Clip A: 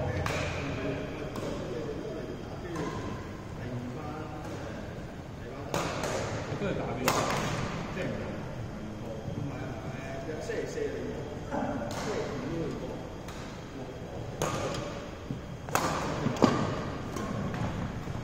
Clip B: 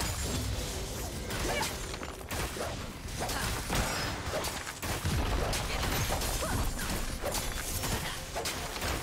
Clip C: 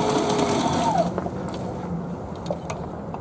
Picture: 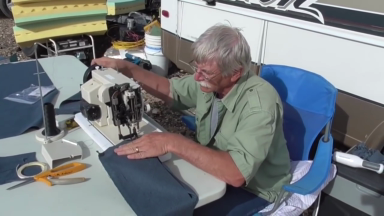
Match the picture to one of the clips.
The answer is C